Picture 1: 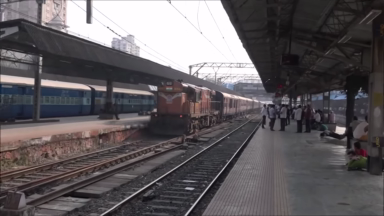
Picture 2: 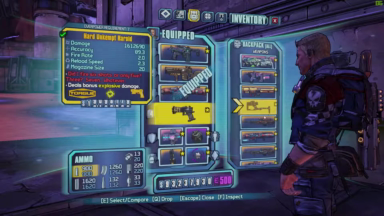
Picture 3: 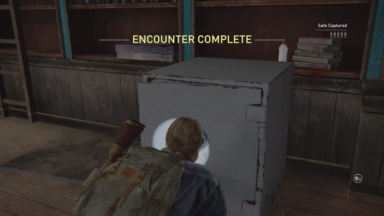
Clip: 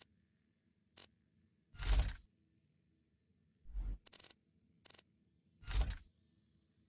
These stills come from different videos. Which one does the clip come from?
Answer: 2